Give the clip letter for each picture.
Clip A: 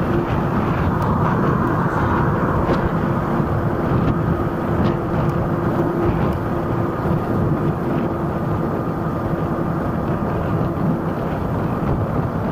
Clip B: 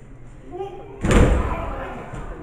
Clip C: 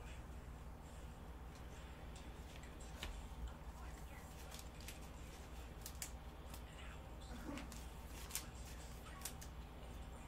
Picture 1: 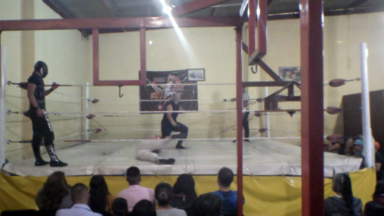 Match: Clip B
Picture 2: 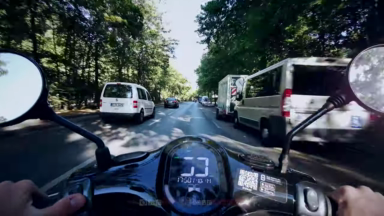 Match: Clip A